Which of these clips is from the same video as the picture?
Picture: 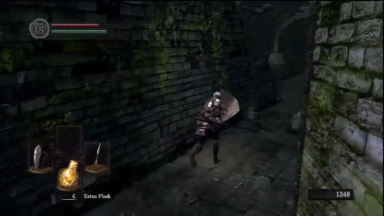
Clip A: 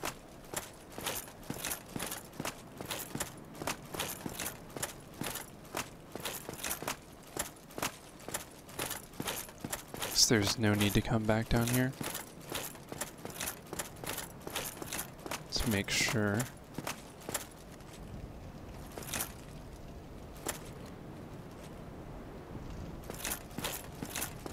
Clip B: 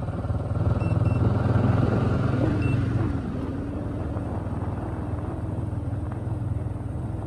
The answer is A